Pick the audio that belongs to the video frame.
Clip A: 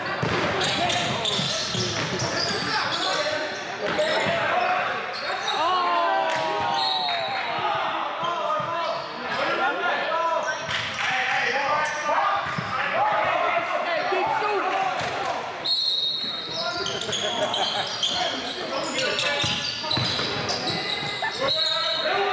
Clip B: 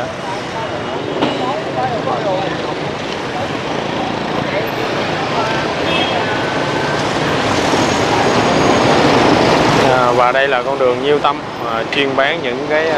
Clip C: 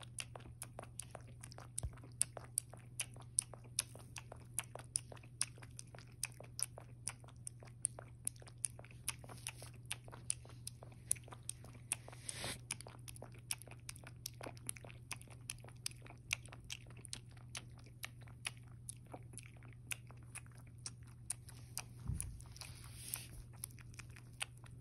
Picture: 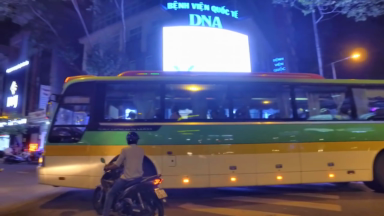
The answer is B